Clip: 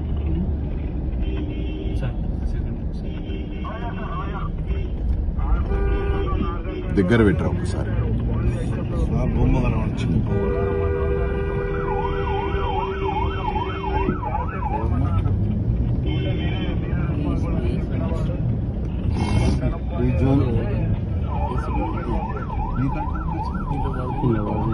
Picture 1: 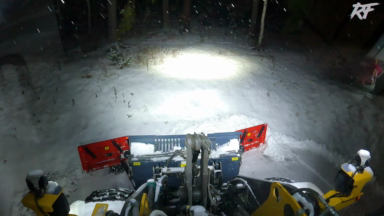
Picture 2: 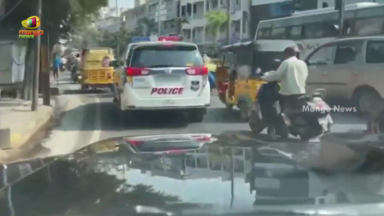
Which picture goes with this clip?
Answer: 2